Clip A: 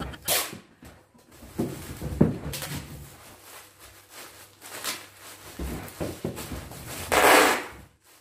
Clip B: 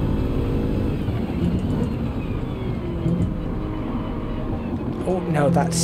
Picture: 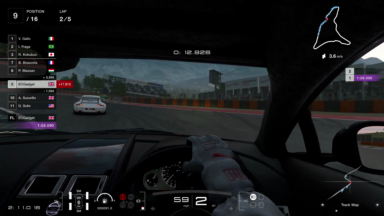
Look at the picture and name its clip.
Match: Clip B